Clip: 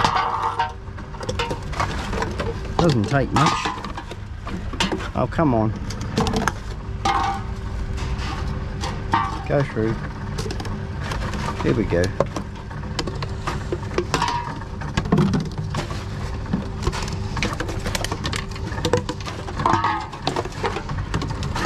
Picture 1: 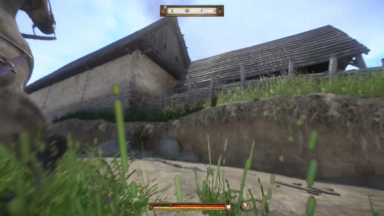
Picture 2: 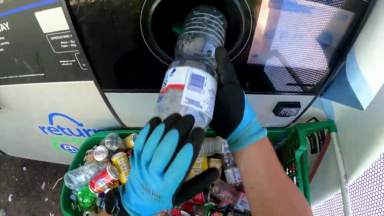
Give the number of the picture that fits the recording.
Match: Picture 2